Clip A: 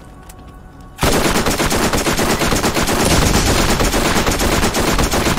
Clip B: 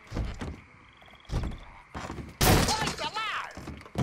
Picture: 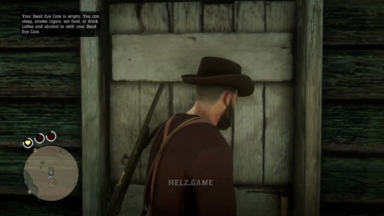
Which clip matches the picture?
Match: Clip B